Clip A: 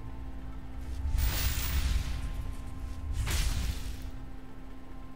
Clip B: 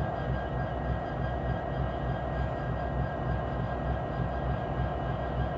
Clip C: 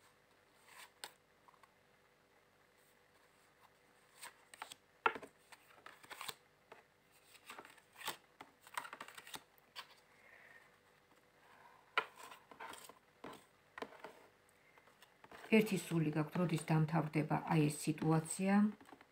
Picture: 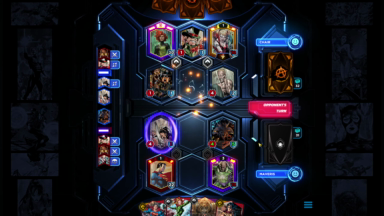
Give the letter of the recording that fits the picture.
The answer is A